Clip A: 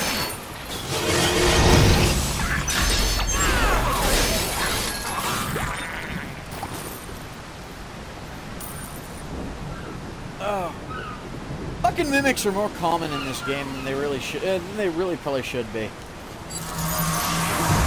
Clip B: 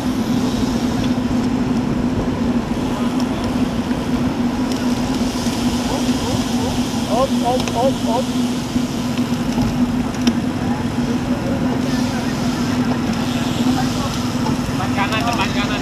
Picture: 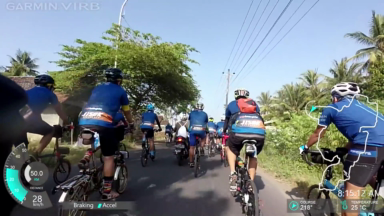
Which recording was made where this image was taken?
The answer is B